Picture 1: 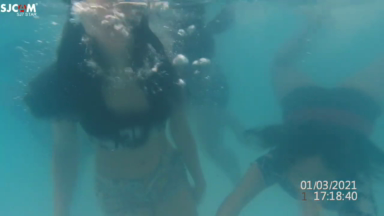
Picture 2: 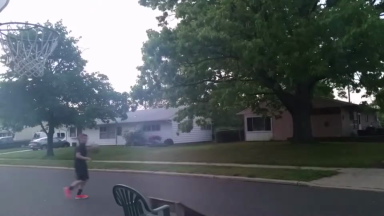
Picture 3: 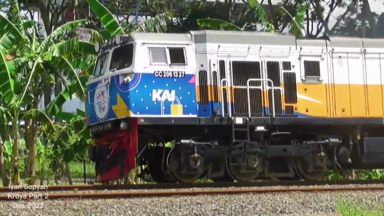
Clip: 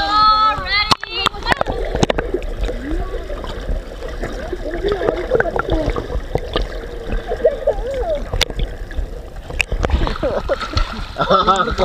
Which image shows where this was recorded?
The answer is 1